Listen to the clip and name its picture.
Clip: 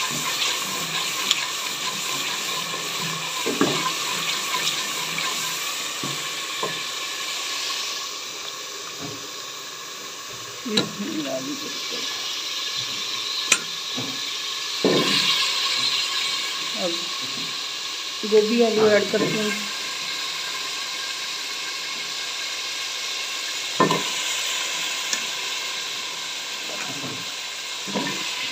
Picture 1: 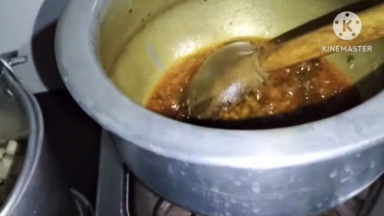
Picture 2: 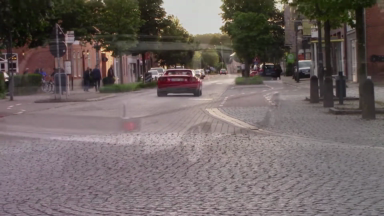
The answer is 1